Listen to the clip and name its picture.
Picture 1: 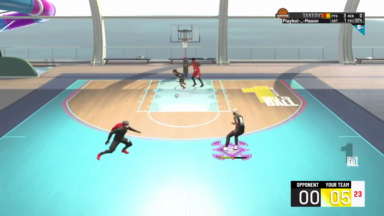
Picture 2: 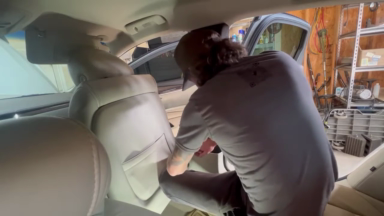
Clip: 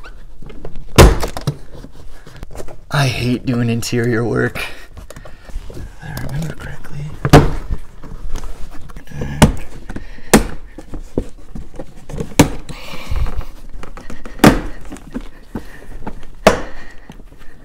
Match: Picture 2